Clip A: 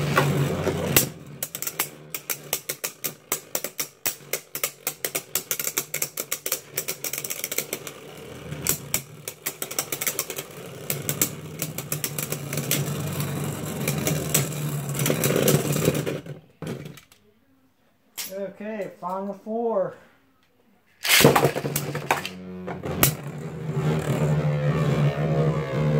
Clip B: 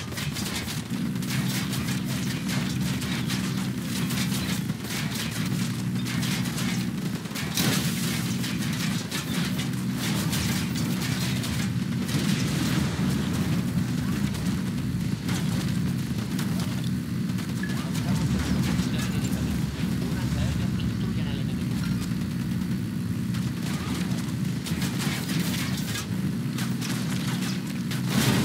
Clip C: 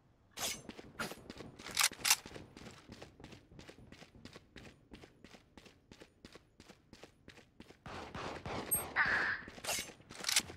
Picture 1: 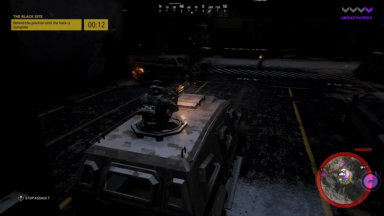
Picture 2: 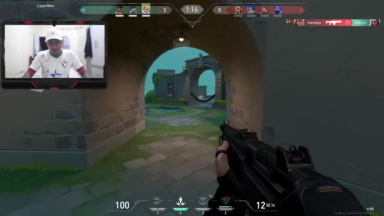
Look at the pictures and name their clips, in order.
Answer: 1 B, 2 C